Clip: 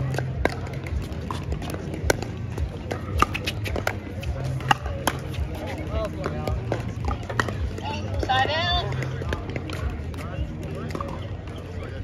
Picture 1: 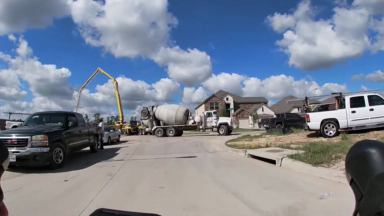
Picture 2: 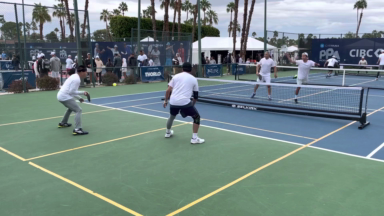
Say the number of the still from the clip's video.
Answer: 2